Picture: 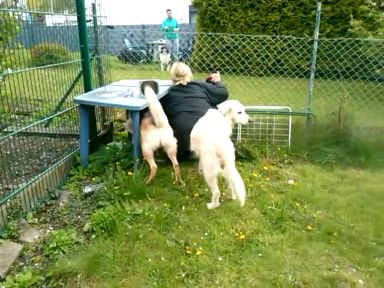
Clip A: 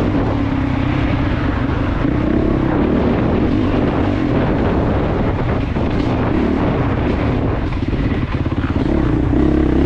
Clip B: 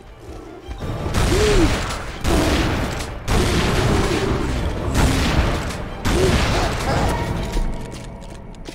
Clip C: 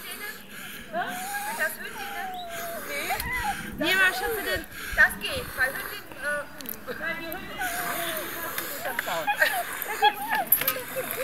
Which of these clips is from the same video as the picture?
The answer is C